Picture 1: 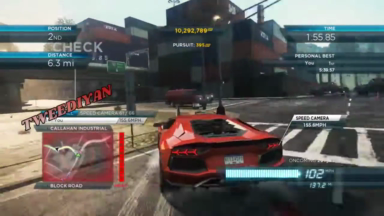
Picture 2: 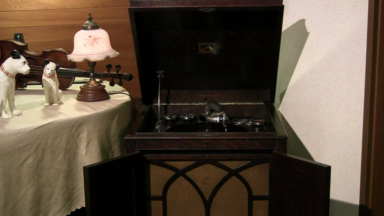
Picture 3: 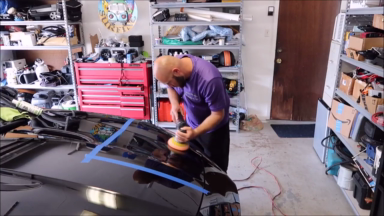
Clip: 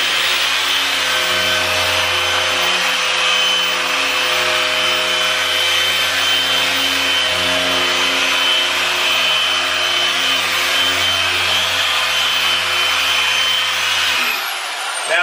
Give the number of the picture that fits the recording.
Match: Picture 3